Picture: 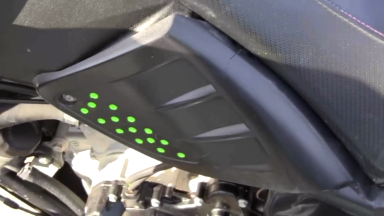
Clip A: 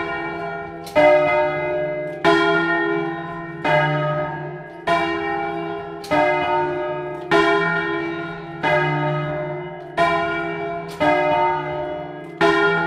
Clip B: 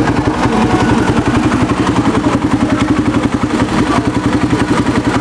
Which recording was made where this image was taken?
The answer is B